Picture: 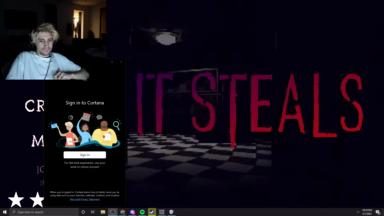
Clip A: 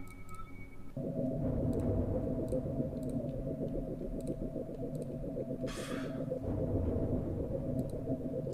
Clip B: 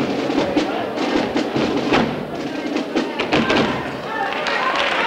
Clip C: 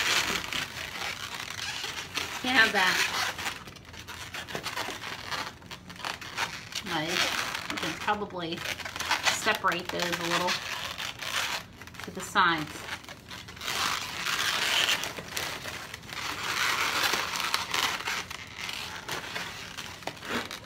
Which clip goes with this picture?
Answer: A